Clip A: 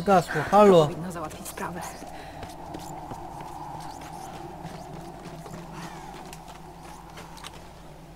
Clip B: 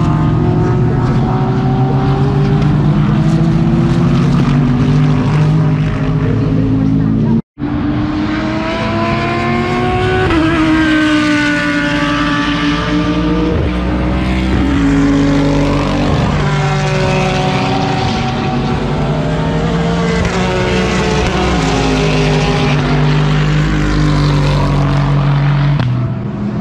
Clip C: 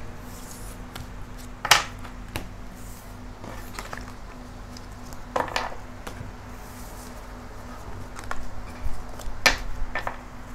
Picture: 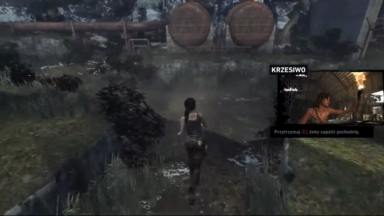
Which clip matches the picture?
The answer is A